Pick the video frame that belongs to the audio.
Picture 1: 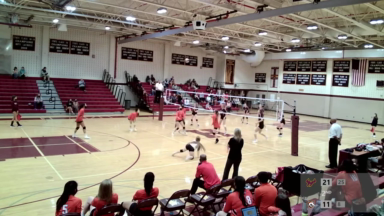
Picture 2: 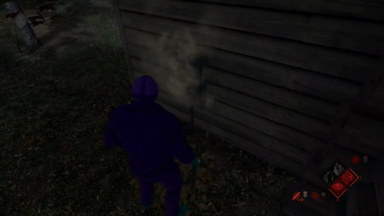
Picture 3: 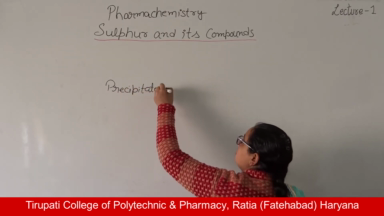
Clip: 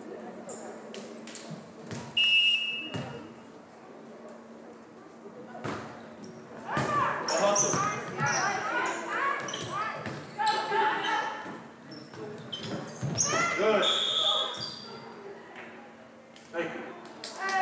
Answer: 1